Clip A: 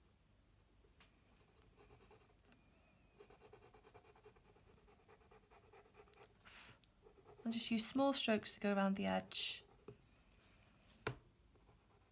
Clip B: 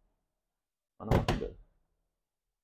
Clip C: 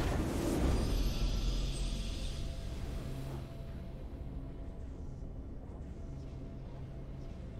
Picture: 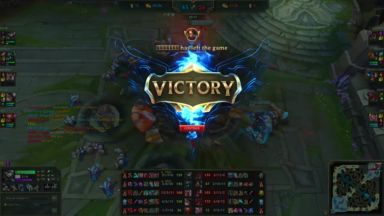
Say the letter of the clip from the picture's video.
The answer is C